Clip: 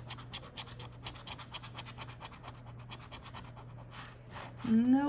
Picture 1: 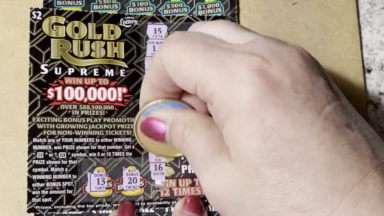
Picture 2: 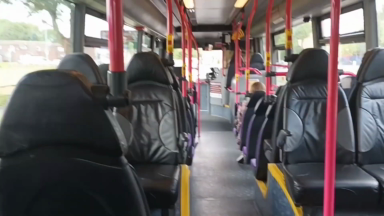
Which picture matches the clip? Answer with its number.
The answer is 1